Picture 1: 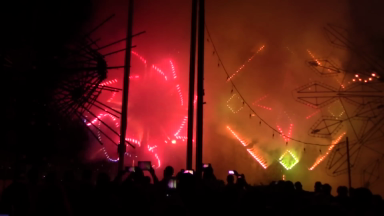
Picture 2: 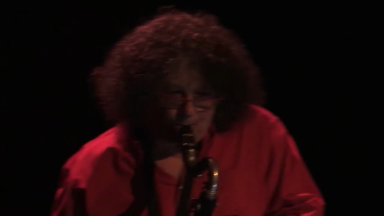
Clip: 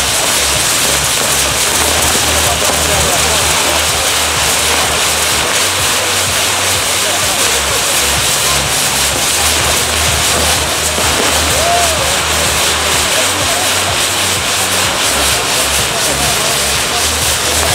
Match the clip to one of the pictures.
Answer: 1